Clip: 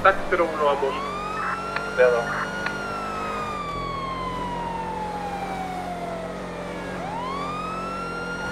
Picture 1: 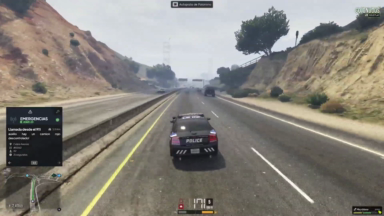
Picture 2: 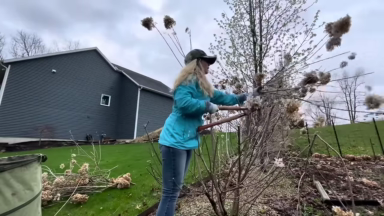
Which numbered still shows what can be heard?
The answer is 1